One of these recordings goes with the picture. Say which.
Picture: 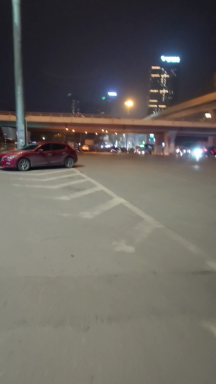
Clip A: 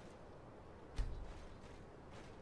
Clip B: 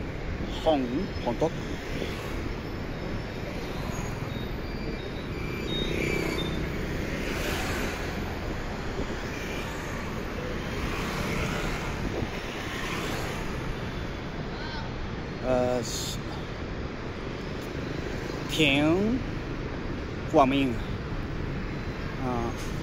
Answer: B